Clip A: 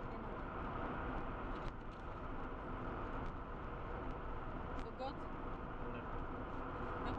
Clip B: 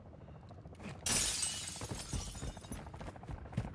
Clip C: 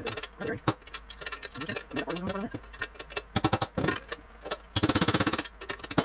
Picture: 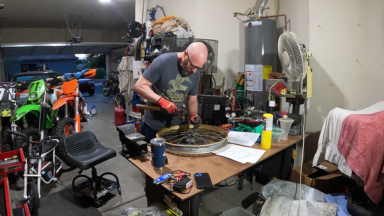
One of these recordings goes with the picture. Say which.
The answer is C